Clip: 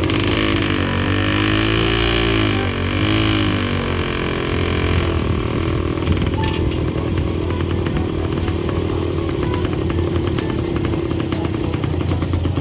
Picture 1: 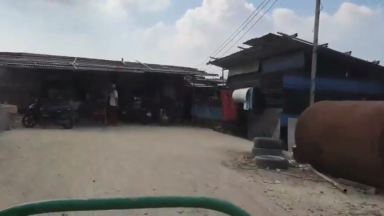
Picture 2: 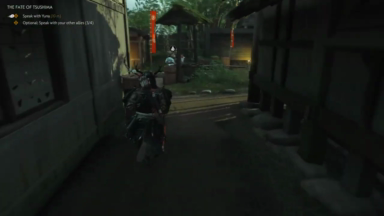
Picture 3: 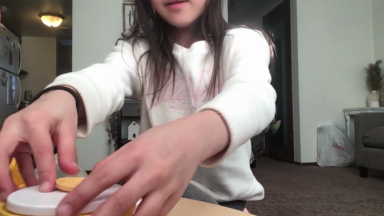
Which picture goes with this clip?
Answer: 1